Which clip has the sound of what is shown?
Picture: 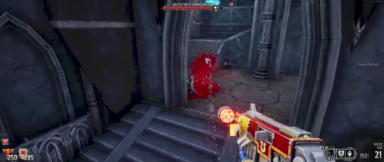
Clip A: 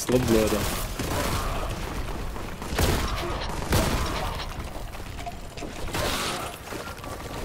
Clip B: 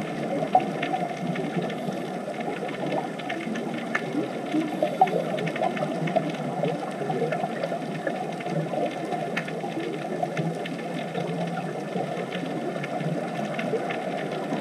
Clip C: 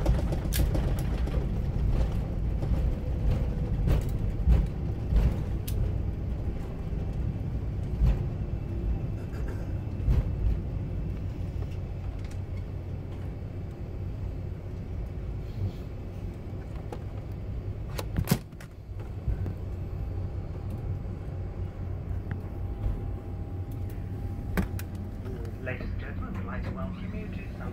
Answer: A